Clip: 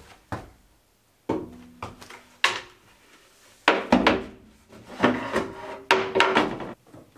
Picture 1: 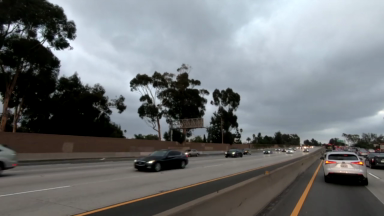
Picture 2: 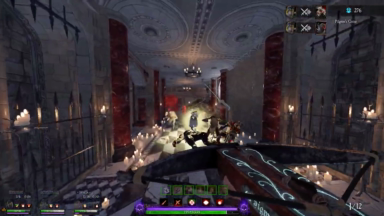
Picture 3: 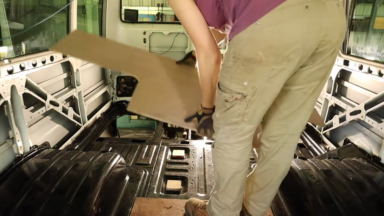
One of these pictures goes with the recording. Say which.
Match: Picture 3